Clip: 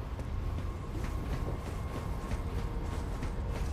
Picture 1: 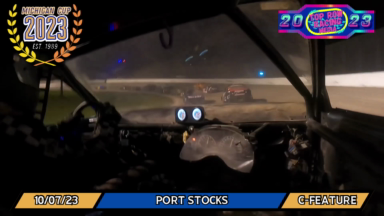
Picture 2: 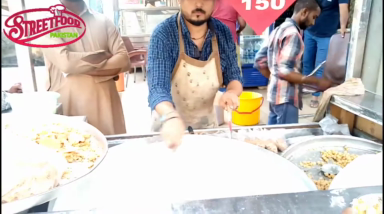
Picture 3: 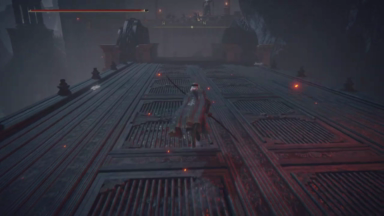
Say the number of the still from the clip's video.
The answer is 3